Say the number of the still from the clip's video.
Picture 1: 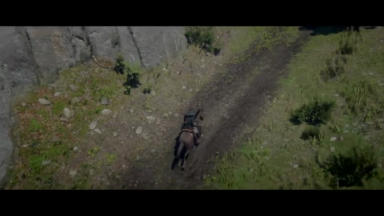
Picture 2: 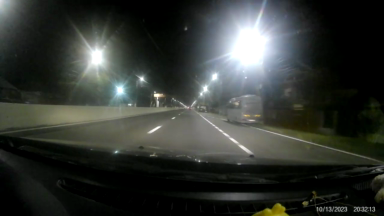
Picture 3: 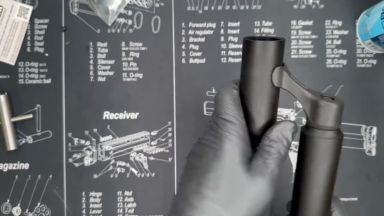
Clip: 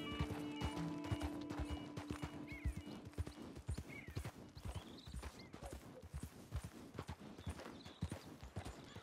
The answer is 1